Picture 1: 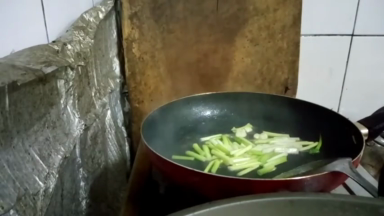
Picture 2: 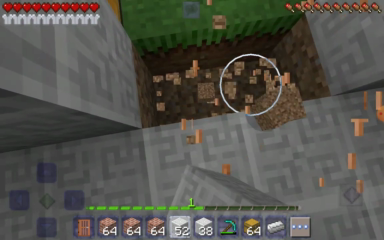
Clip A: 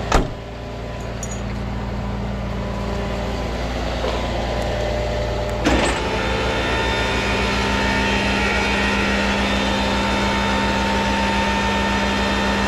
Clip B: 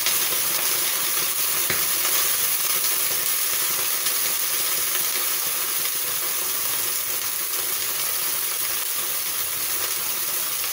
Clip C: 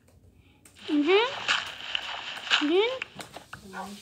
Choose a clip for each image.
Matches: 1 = B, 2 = C